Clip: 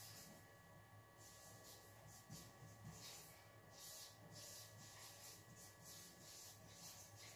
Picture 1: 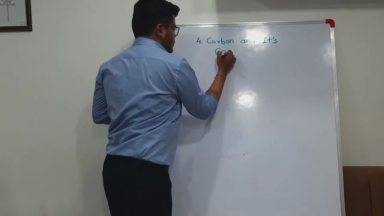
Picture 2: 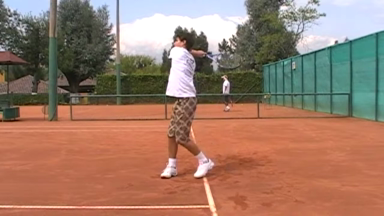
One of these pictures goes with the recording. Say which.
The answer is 1